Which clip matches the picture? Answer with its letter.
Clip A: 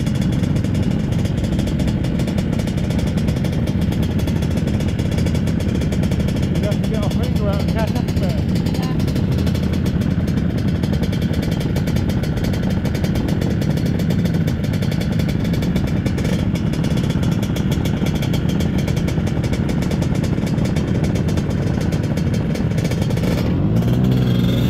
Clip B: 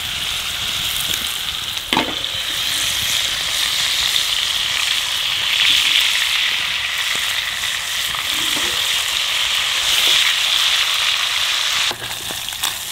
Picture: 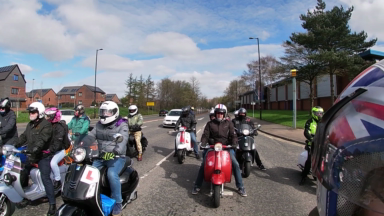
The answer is A